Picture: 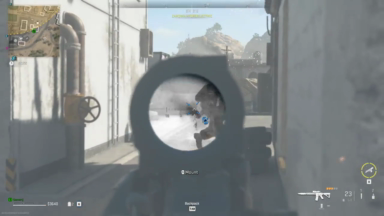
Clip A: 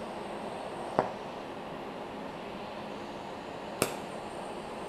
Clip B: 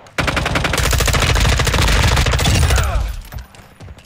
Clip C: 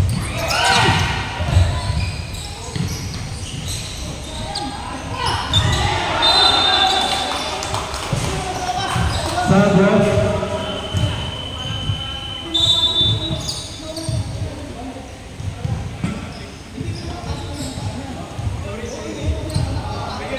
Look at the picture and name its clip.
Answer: B